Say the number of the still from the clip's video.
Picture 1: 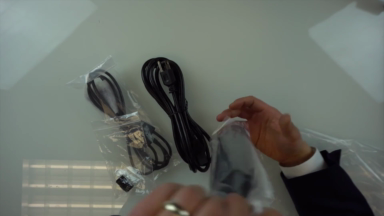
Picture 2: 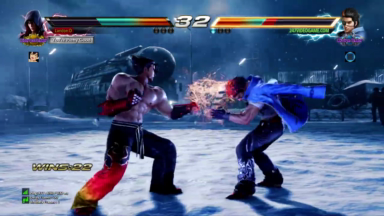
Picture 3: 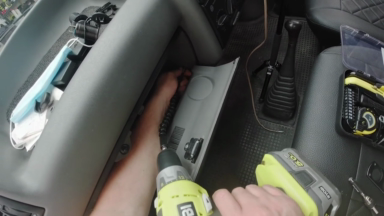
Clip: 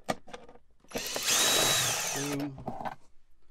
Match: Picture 3